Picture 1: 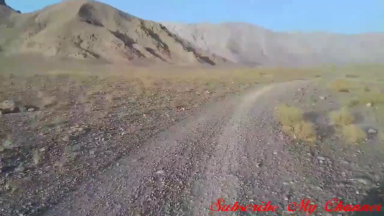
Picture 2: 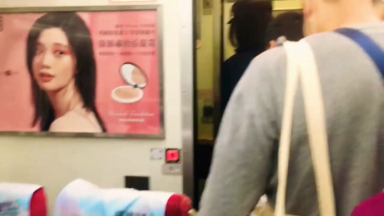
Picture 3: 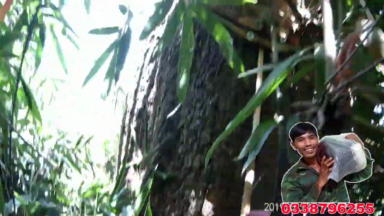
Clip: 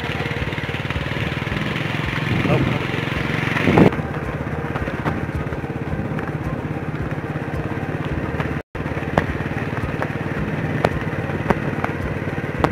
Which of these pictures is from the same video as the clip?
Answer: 1